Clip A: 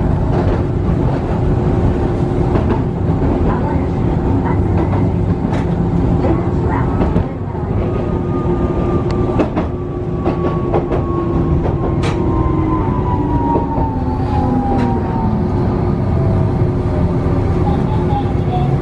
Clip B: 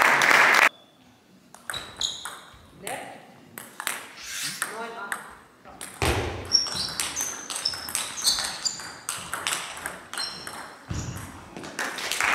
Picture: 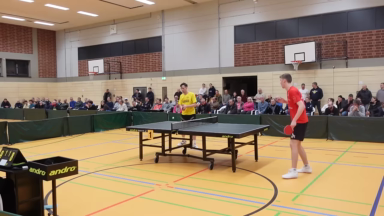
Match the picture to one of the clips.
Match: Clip B